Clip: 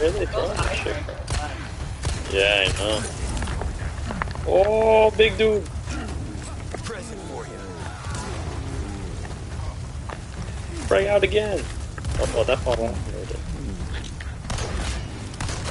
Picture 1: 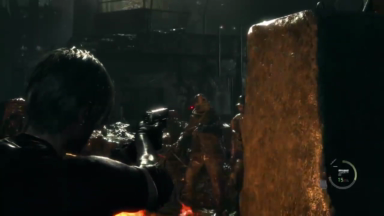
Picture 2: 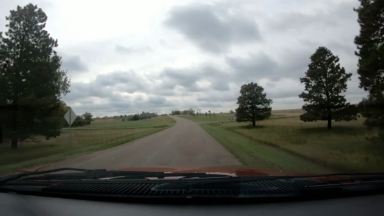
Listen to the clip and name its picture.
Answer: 1